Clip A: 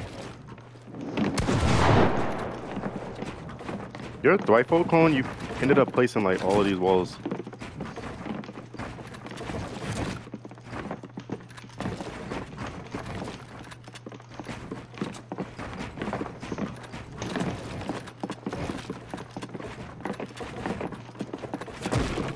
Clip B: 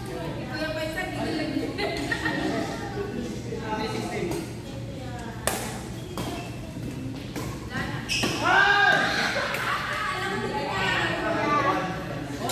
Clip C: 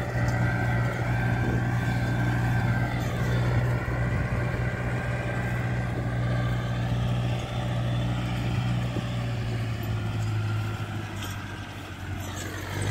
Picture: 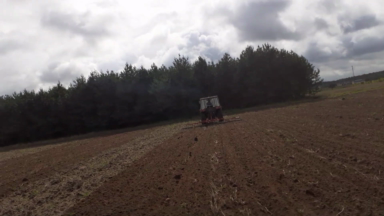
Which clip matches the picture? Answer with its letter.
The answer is C